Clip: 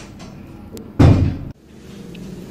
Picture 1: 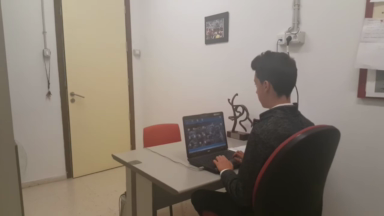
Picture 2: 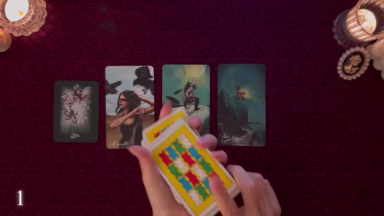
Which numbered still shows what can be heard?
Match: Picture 1